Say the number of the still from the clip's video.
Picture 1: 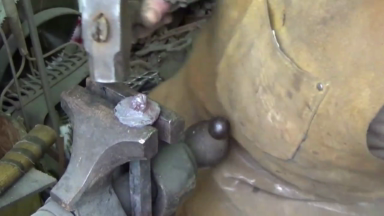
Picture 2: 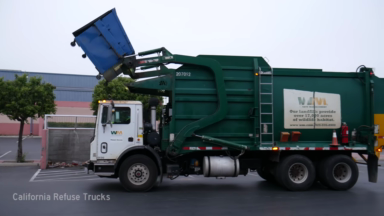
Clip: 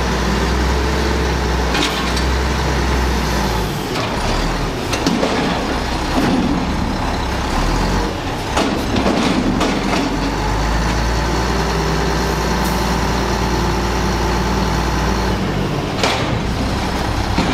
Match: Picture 2